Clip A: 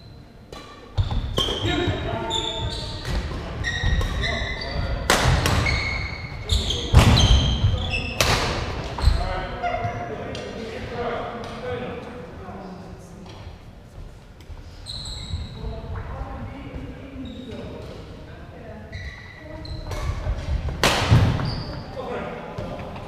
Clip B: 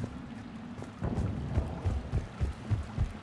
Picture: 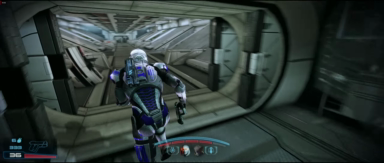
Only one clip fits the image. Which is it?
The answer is B